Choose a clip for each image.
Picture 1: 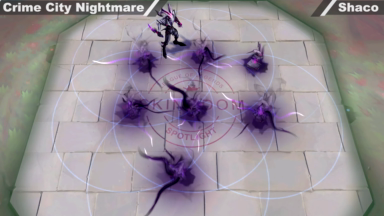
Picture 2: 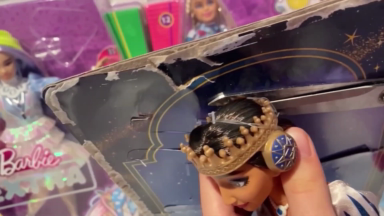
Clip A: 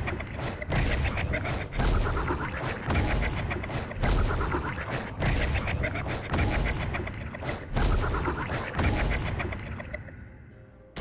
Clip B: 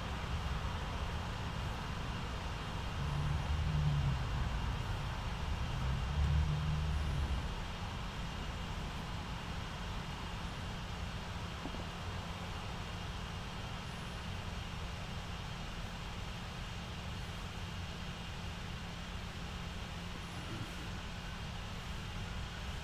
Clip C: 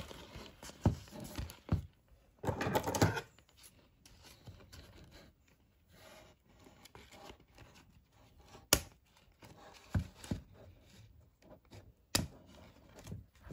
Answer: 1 A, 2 C